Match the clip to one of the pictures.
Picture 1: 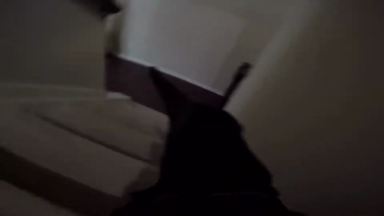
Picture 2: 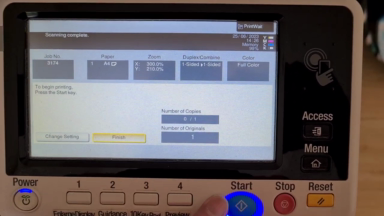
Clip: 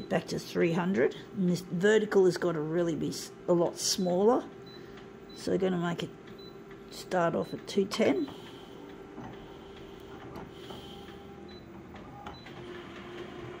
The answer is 2